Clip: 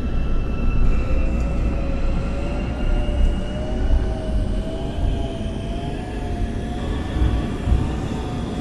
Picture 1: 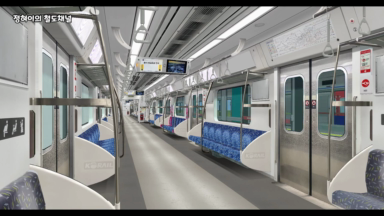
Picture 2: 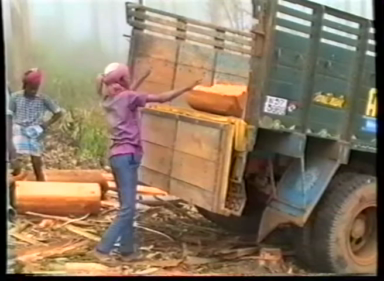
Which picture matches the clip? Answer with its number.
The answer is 1